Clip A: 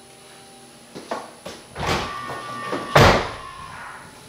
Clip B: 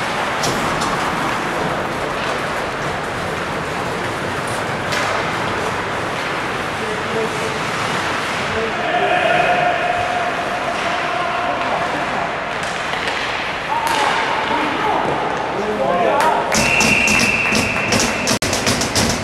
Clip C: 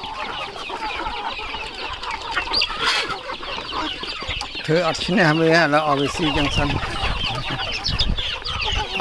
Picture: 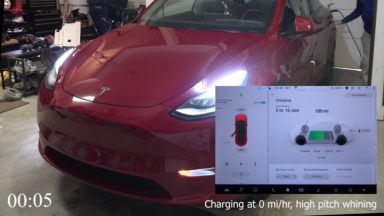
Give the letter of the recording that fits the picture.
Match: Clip A